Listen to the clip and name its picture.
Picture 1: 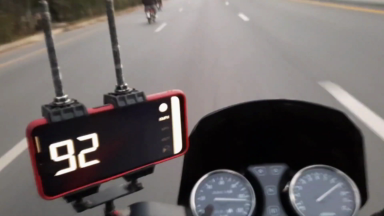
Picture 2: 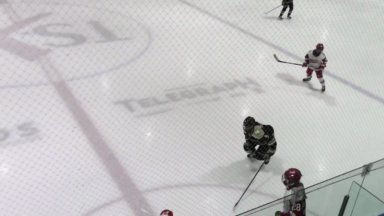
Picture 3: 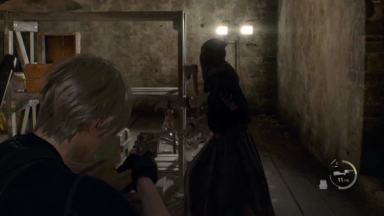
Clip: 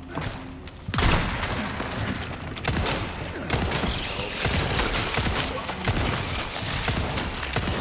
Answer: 3